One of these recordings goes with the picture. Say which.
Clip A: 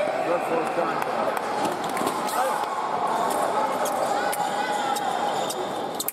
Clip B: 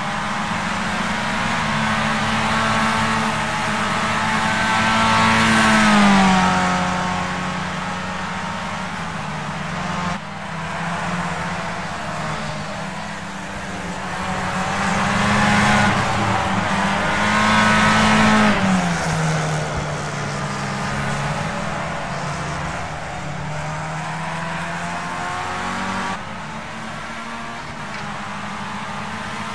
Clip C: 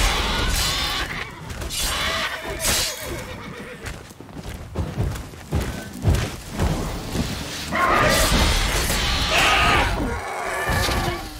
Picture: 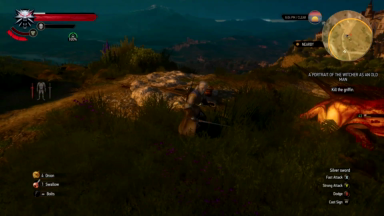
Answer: C